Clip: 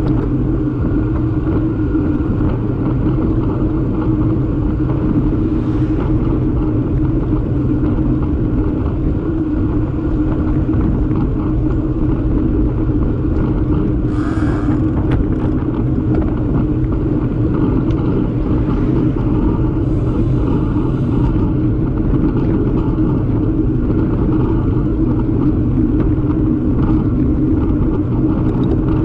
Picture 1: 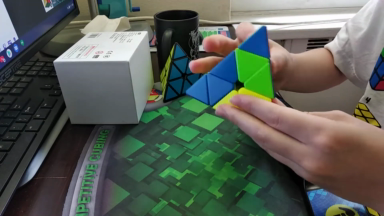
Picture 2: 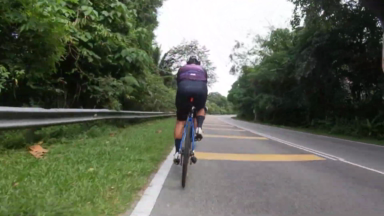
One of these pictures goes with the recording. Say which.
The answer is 2